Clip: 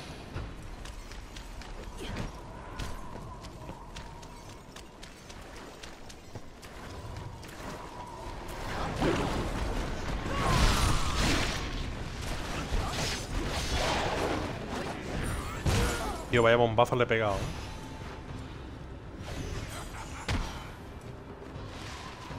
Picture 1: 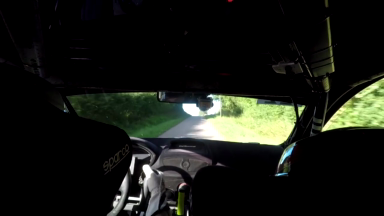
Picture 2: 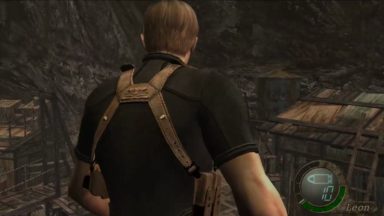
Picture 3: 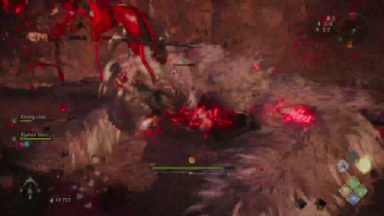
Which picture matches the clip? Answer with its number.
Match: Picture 3